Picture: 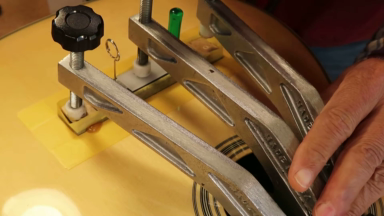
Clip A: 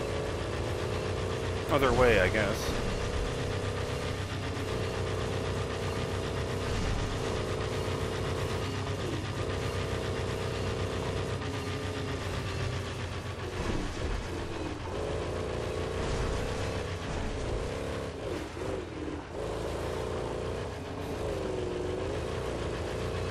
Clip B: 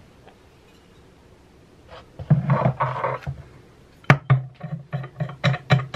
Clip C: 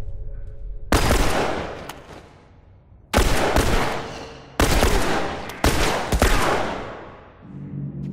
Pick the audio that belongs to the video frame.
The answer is B